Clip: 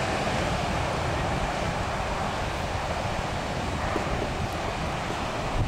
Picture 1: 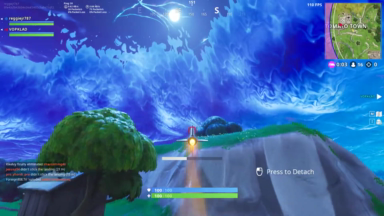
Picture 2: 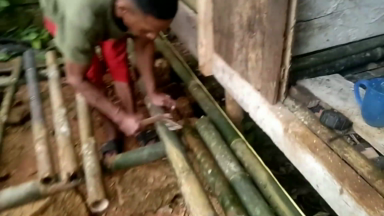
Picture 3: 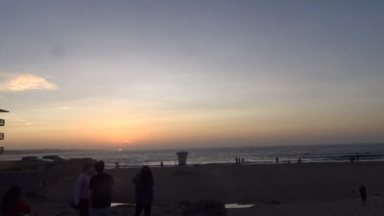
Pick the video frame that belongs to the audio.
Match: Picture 3